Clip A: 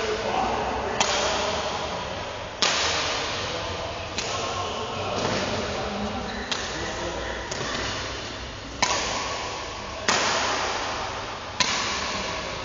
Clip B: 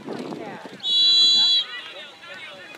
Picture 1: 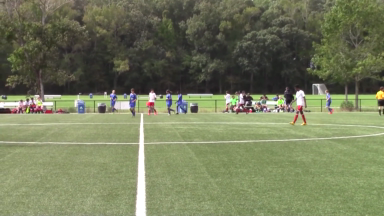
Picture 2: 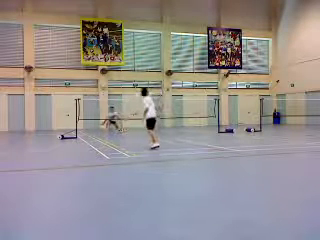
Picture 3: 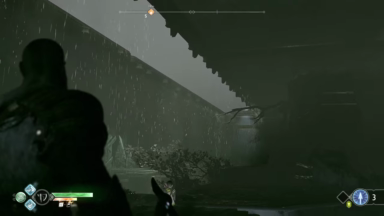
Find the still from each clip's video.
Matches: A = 2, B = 1